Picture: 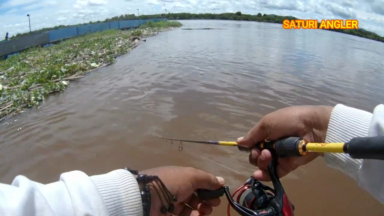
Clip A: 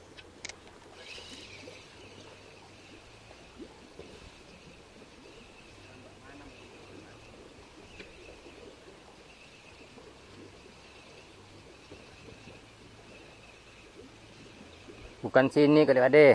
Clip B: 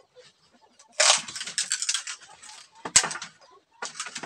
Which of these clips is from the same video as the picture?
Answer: A